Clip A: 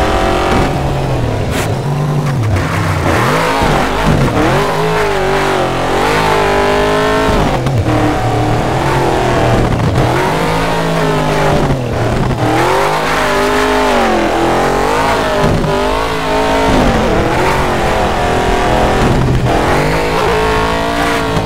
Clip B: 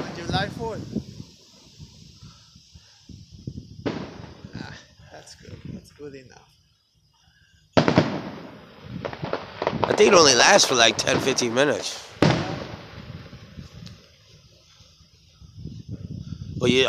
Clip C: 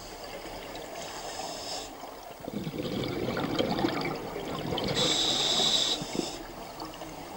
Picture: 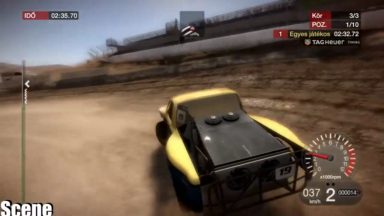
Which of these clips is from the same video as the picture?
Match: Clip A